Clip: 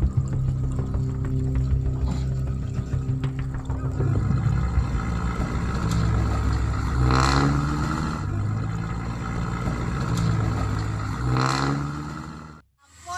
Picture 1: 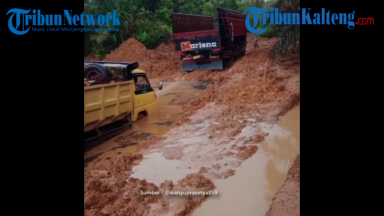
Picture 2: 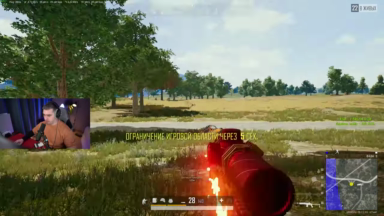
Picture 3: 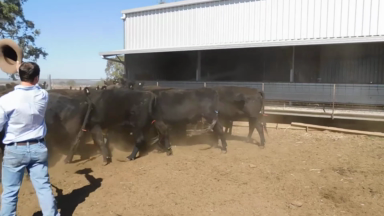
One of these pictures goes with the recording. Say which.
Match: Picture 1